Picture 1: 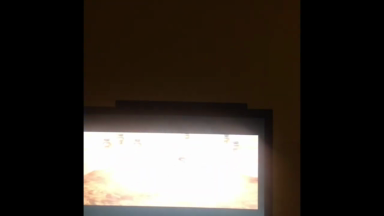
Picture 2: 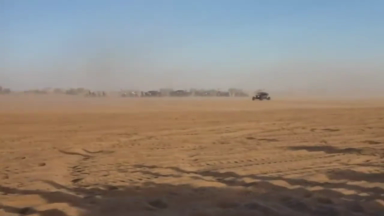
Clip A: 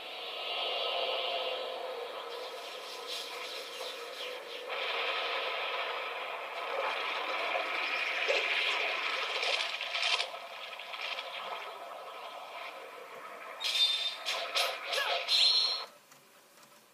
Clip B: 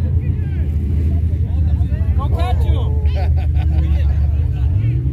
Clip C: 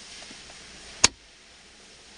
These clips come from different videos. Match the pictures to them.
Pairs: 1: A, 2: B